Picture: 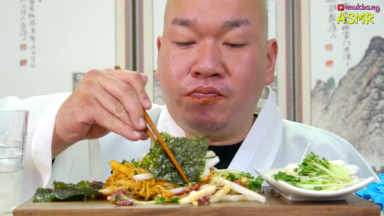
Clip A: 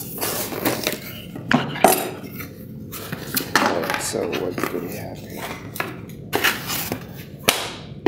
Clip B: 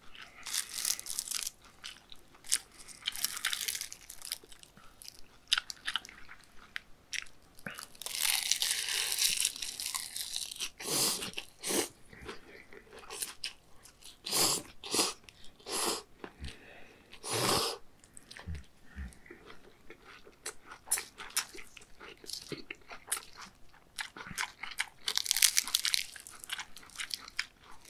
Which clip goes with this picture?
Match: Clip B